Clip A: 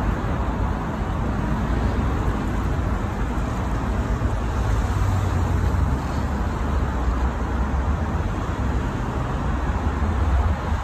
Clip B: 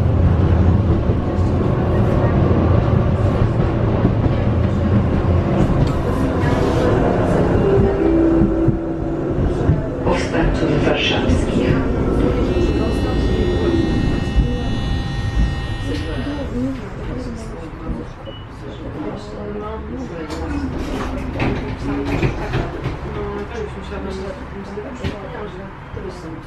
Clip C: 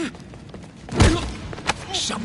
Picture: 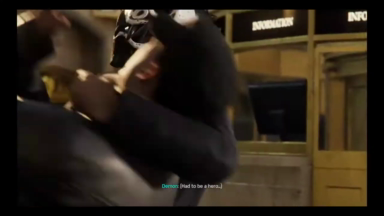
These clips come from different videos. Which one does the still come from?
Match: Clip C